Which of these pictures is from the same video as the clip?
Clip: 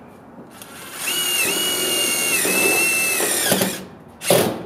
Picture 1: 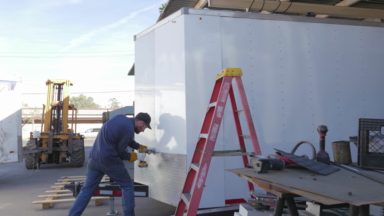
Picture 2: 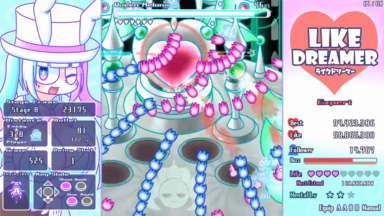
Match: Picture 1